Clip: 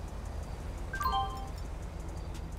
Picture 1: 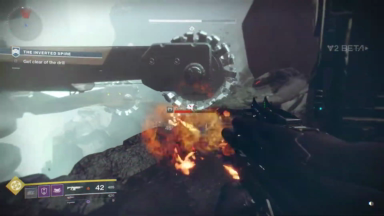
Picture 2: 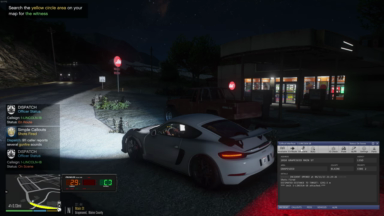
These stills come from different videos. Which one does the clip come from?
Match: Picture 2